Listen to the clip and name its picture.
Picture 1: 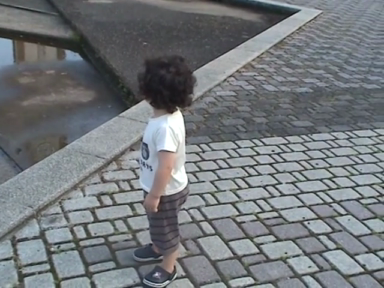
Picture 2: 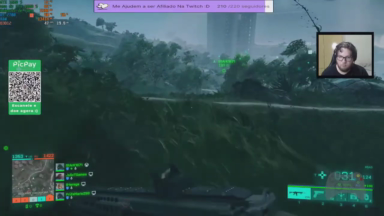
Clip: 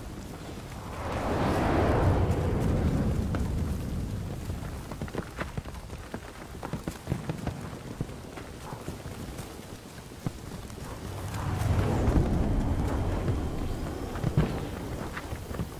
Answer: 2